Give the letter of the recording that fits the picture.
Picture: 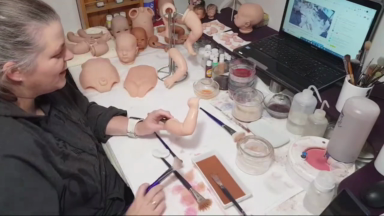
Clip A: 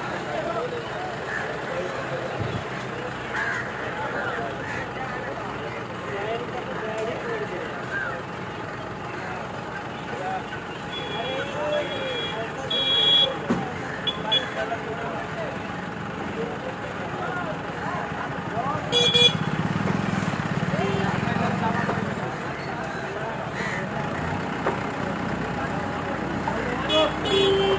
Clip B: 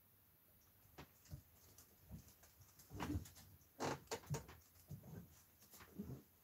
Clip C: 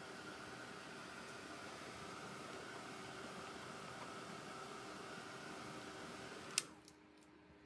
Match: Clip B